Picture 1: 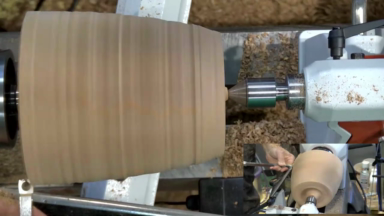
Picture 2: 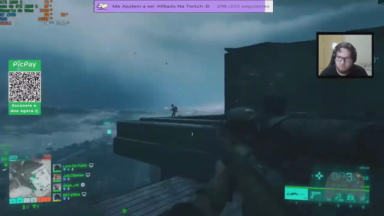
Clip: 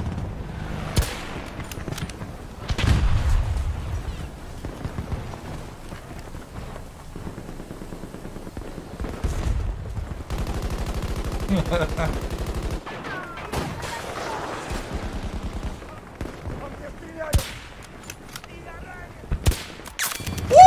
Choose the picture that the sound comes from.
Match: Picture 2